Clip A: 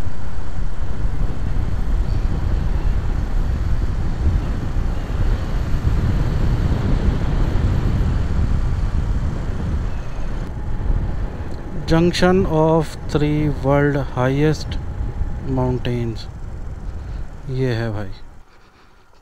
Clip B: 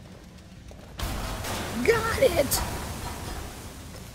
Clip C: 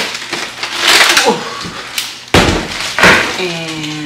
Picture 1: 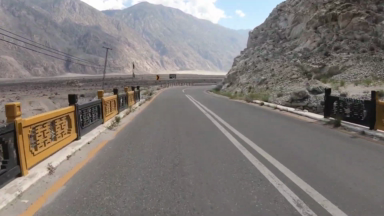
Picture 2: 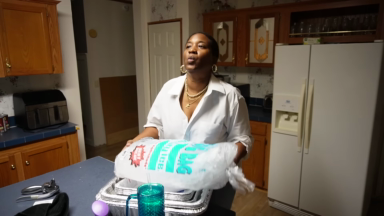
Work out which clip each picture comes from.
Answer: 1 A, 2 C